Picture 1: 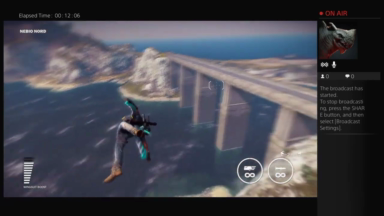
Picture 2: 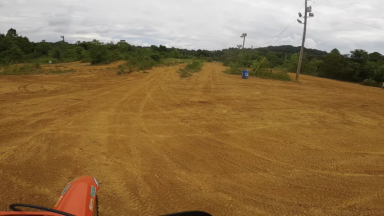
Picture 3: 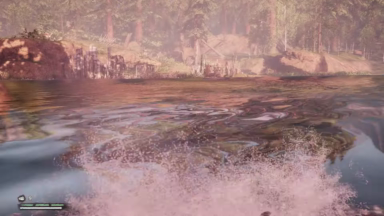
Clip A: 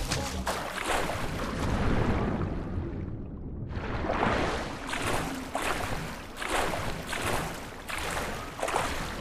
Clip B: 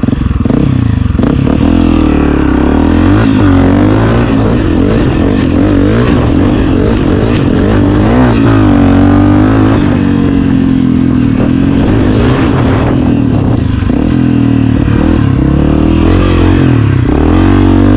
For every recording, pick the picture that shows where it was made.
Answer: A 3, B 2